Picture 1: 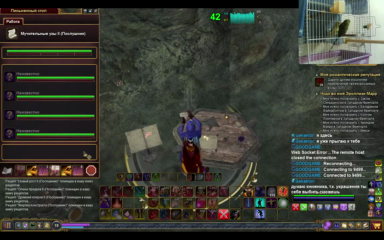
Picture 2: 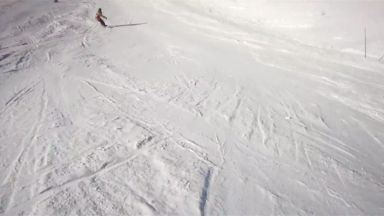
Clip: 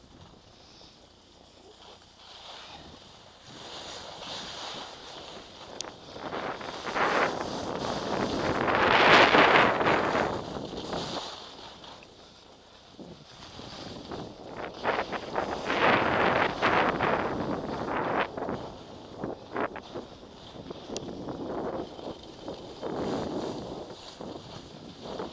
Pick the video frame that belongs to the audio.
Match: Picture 2